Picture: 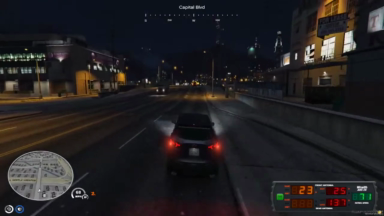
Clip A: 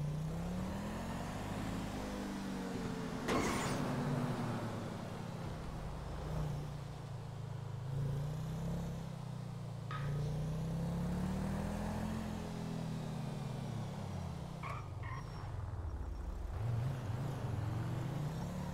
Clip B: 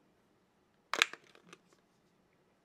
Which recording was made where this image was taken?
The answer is A